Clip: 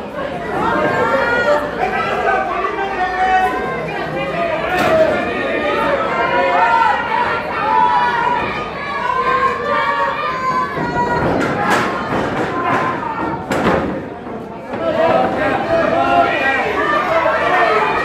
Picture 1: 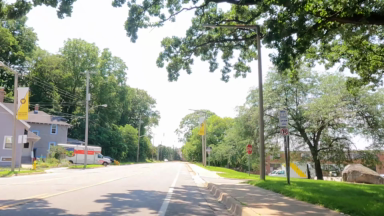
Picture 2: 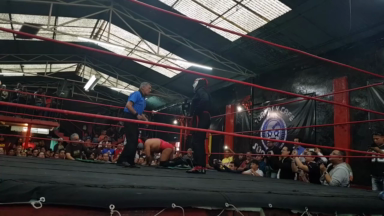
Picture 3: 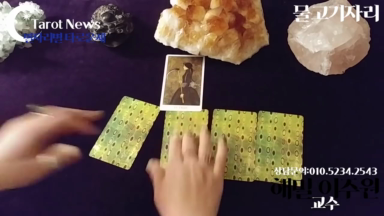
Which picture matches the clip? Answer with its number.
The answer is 2